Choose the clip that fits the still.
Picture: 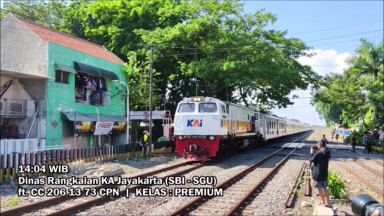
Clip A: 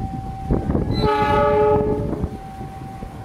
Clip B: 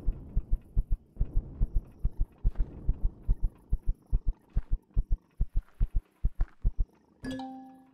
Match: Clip A